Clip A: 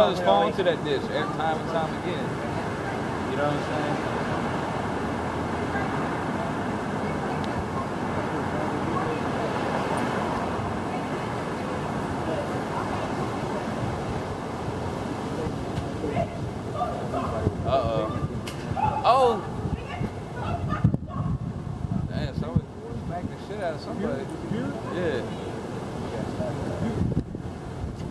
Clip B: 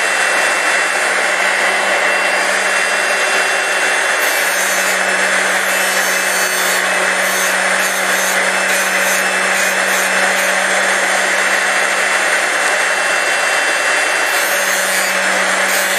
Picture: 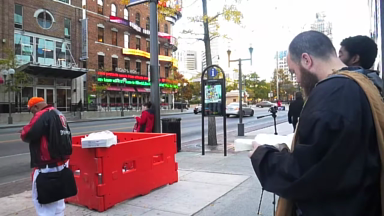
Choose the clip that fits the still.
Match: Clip A